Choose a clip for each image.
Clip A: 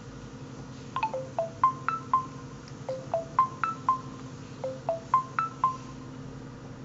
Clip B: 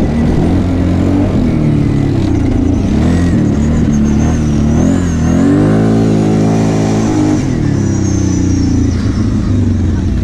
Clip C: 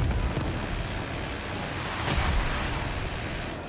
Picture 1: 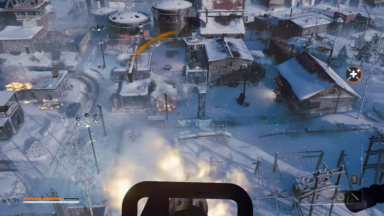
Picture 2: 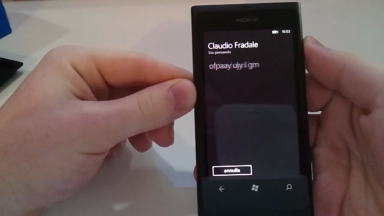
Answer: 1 C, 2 A